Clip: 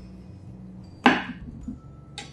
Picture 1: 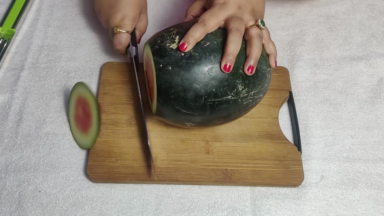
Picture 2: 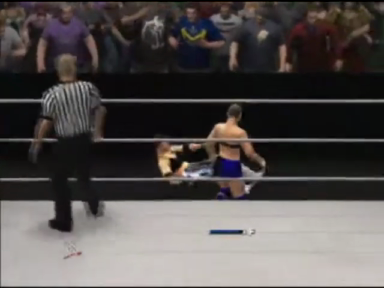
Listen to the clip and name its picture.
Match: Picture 1